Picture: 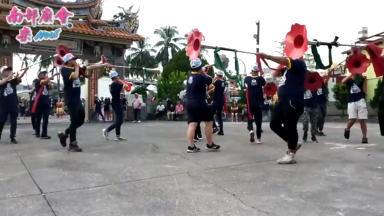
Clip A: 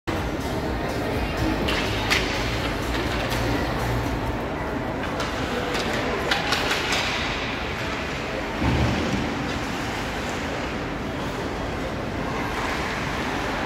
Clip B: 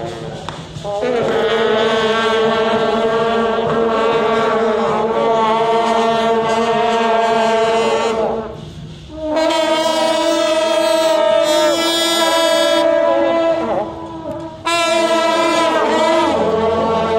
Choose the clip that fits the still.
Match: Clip B